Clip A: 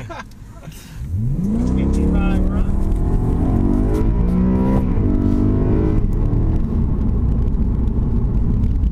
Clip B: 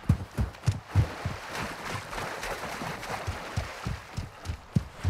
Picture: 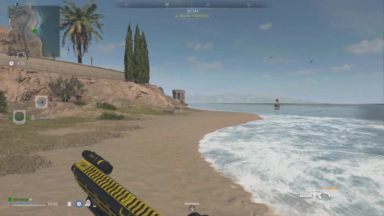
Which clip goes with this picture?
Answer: B